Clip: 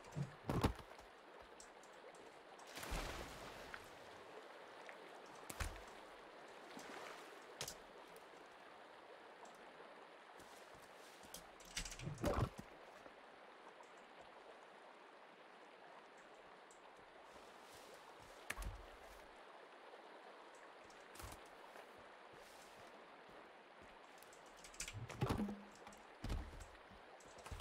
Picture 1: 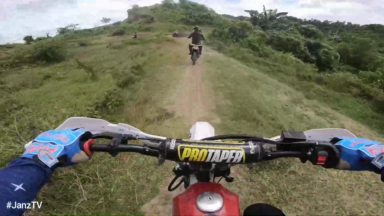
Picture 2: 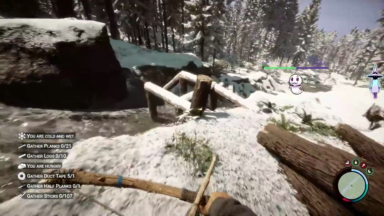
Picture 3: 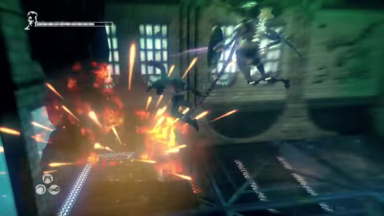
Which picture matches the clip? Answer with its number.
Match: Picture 2